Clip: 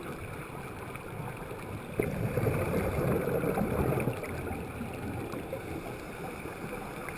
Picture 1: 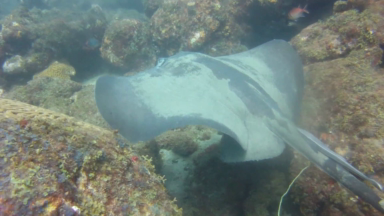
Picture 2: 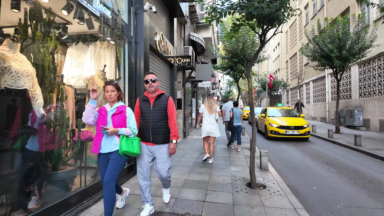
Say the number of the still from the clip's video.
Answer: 1